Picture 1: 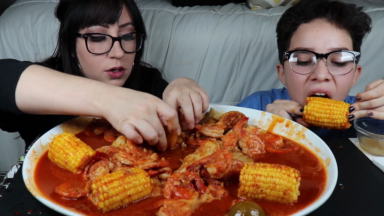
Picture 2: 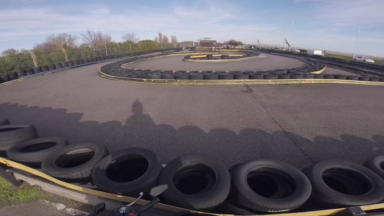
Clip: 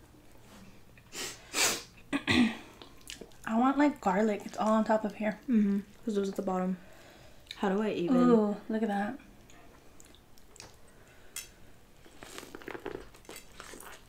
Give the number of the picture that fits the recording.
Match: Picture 1